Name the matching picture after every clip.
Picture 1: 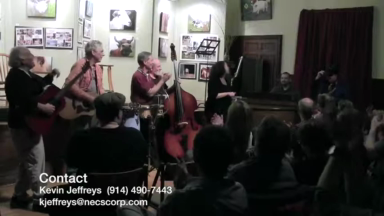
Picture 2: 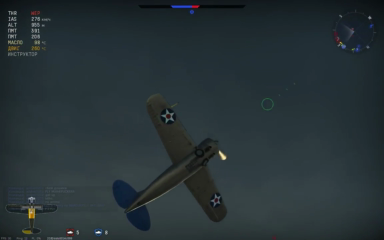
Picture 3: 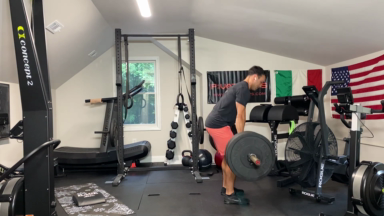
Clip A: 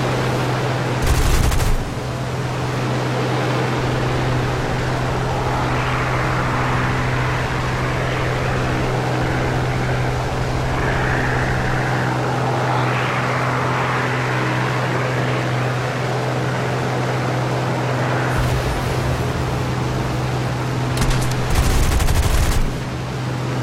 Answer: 2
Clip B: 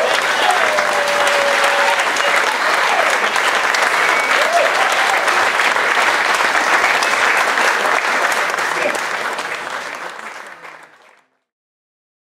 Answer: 1